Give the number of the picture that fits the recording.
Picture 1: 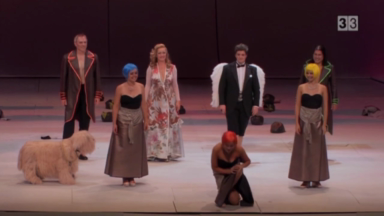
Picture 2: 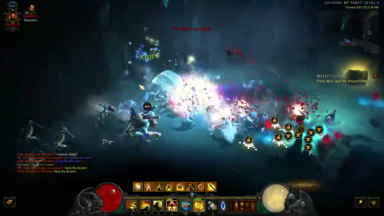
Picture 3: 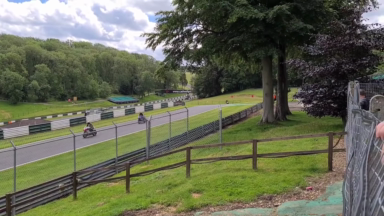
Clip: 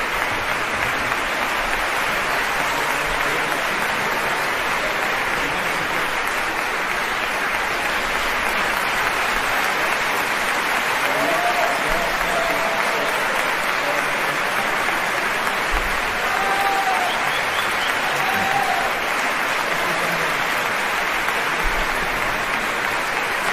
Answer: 1